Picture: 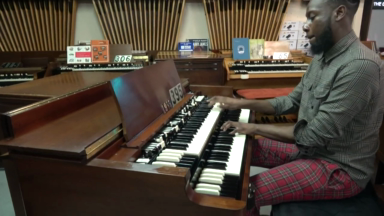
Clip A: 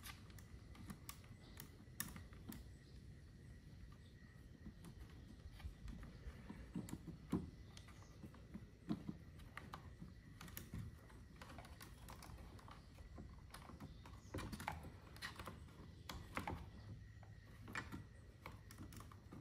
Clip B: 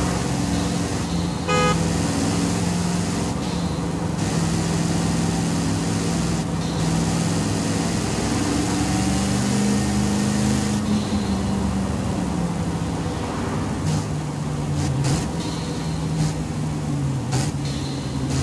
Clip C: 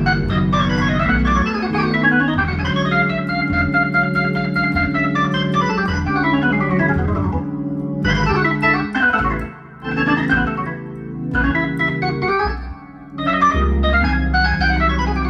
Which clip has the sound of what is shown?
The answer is C